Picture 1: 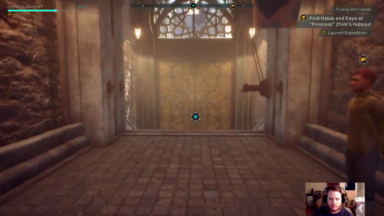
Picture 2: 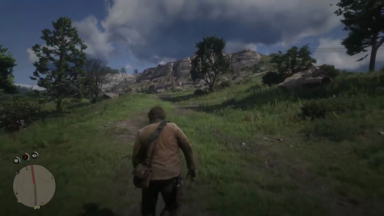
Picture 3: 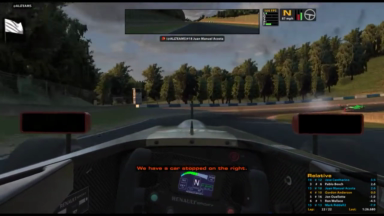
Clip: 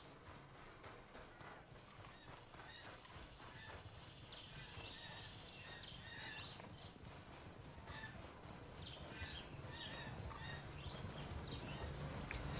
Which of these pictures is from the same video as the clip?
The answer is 2